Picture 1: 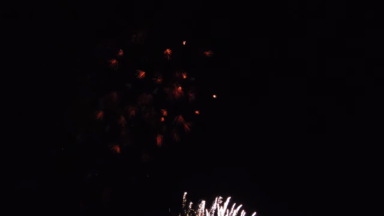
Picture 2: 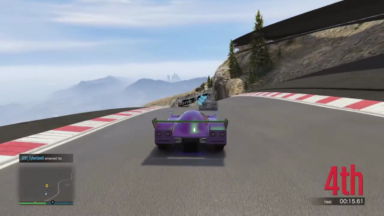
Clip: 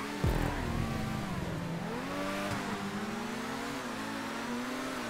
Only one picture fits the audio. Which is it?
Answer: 2